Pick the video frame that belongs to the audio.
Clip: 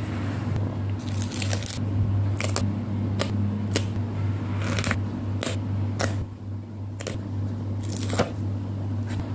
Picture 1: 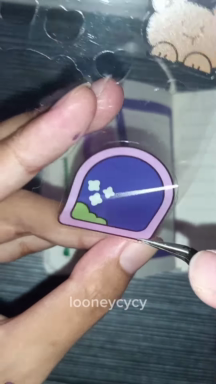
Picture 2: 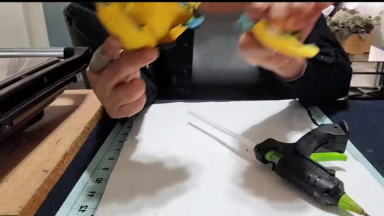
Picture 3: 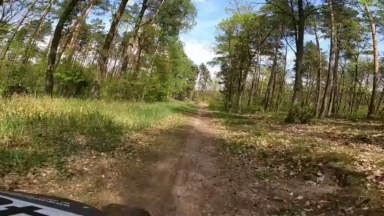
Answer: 1